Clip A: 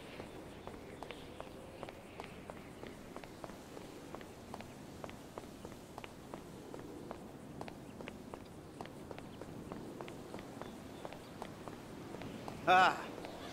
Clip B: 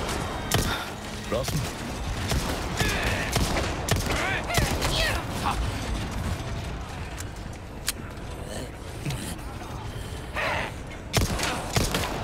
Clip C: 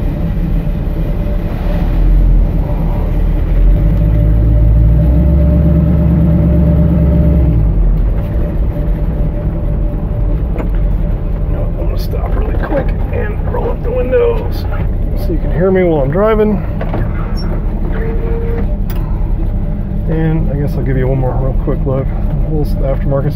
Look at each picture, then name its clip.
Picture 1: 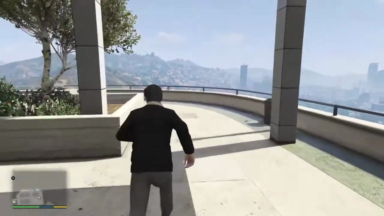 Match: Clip A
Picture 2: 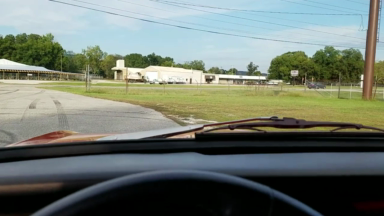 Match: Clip C